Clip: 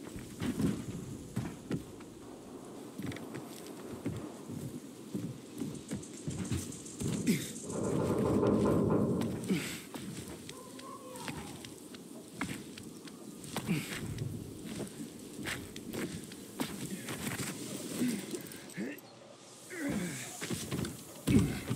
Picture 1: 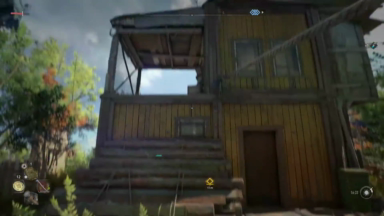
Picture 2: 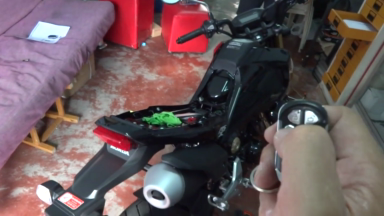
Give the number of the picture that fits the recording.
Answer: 1